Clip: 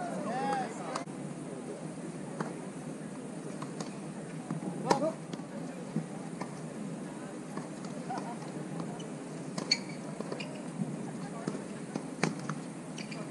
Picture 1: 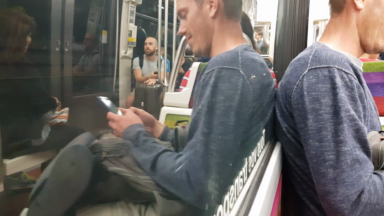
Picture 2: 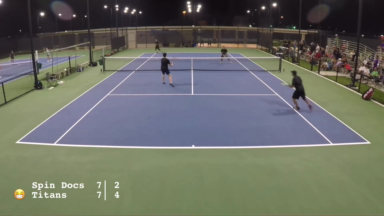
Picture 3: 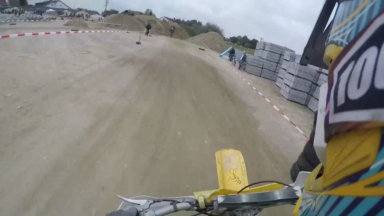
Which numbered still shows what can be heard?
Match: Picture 2